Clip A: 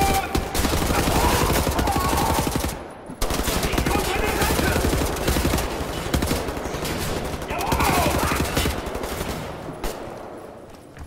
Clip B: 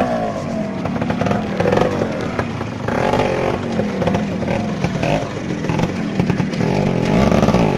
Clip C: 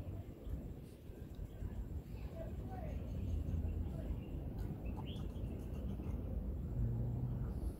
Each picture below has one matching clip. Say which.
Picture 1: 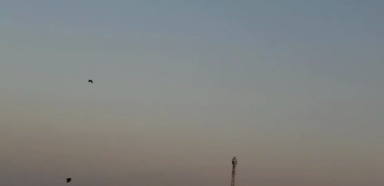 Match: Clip C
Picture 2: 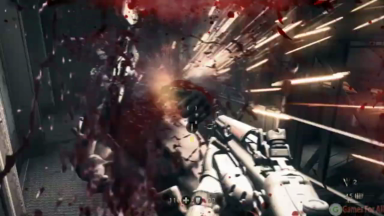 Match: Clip A